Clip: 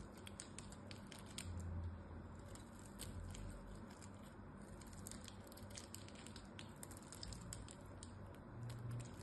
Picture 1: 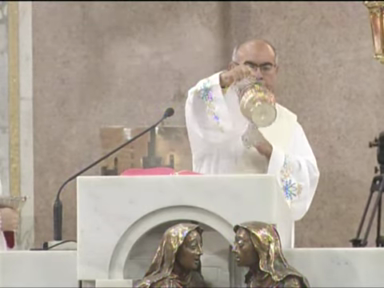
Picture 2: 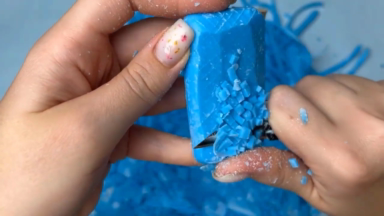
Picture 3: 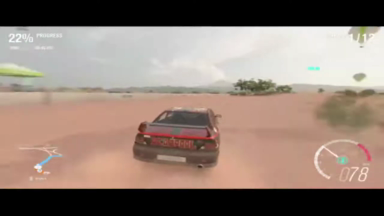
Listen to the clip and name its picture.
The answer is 2